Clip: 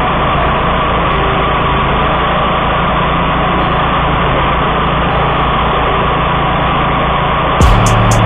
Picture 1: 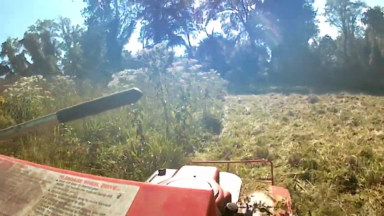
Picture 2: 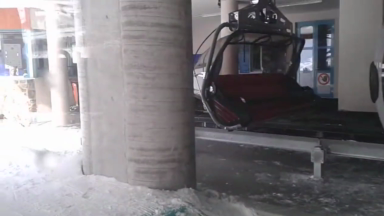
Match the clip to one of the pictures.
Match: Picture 1